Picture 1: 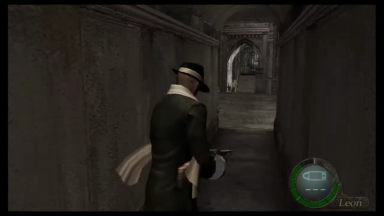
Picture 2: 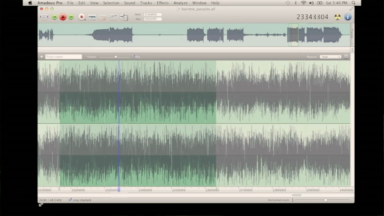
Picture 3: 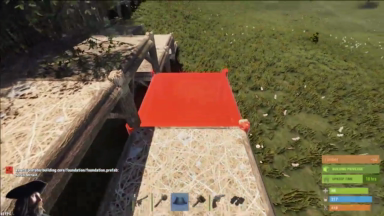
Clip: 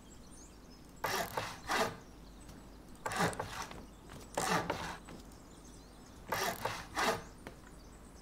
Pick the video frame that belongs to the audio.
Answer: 3